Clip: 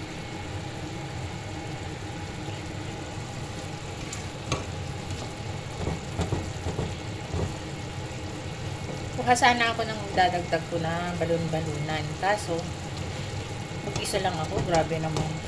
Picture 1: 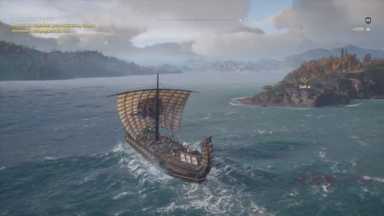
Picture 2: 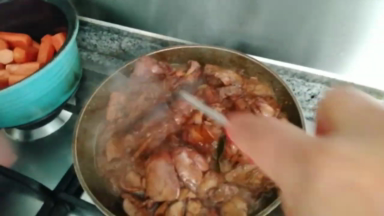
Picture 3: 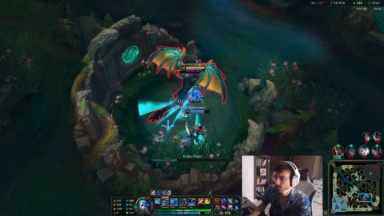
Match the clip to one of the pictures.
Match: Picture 2